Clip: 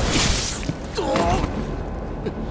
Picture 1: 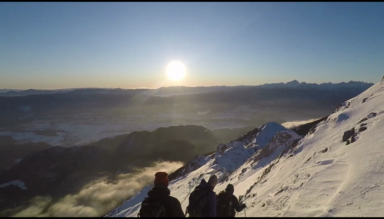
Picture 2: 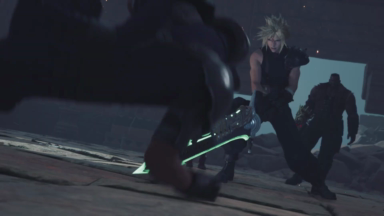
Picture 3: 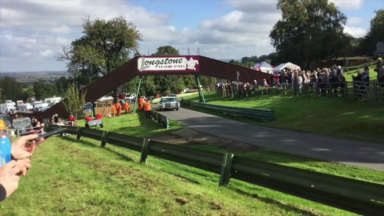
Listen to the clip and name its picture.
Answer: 2